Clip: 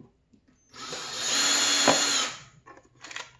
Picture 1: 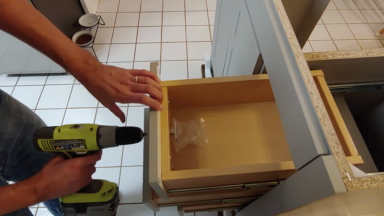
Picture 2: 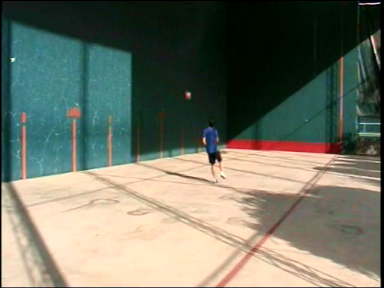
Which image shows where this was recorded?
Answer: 1